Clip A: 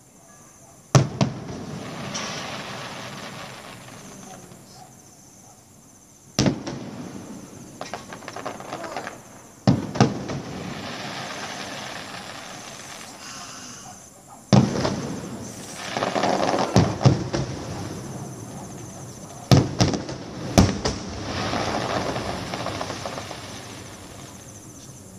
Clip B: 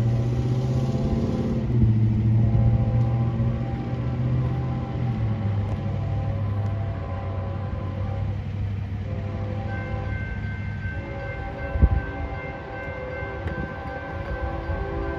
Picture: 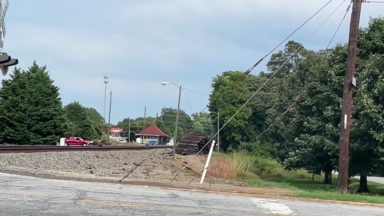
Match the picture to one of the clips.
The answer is B